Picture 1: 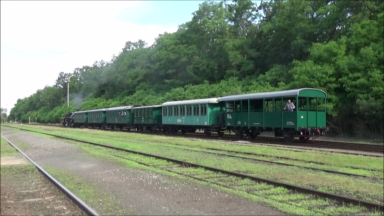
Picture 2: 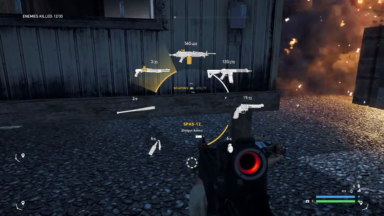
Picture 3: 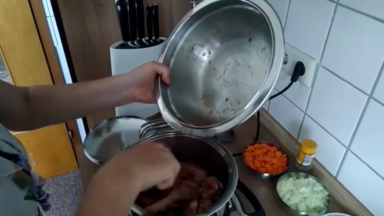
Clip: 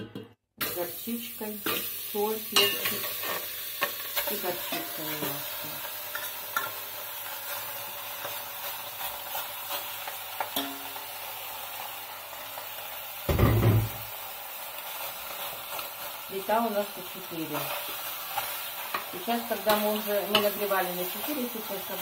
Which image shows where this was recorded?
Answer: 3